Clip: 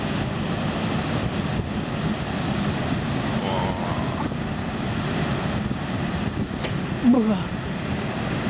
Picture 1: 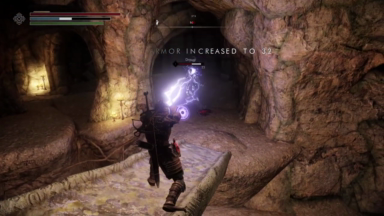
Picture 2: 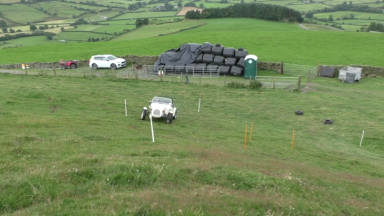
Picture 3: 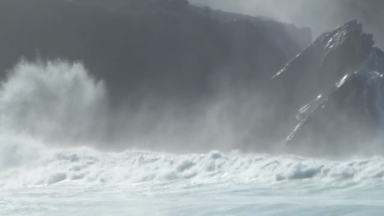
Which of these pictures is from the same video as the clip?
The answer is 3